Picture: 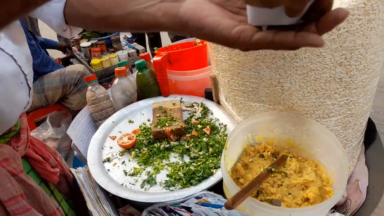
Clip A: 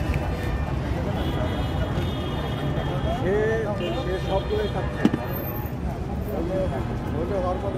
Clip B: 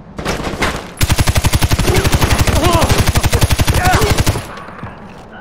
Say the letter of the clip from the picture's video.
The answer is A